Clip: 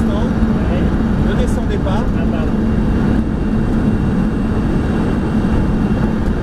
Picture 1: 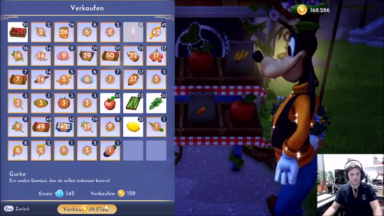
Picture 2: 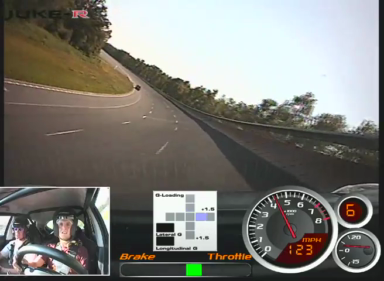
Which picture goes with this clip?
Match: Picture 2